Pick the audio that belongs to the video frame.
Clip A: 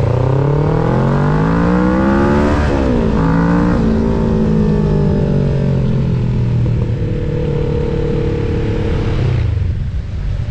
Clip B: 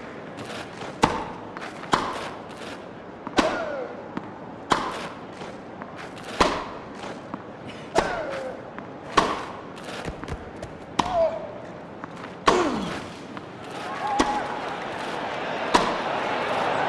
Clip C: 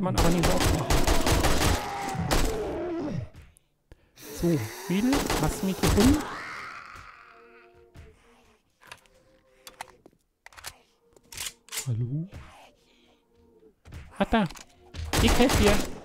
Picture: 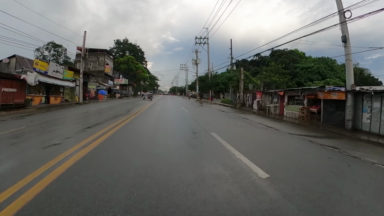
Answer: A